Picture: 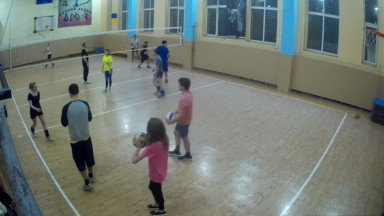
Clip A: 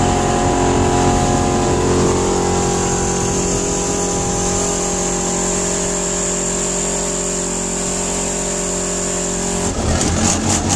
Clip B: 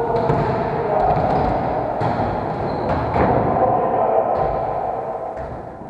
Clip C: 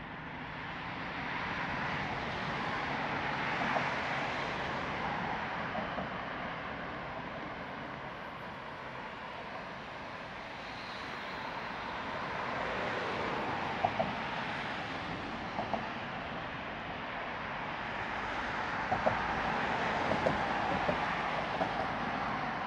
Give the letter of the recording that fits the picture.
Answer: B